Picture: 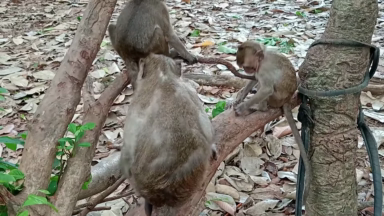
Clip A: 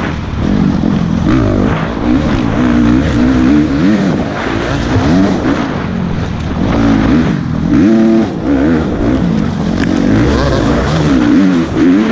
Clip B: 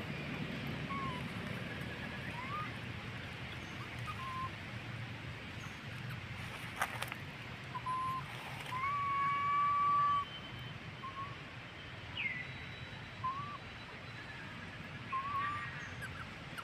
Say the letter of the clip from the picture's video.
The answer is B